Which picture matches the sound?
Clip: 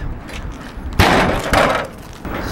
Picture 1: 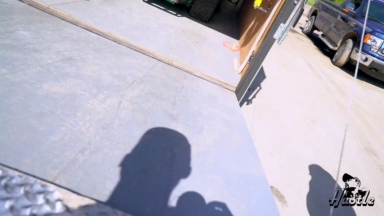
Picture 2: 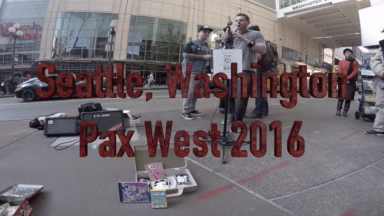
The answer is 1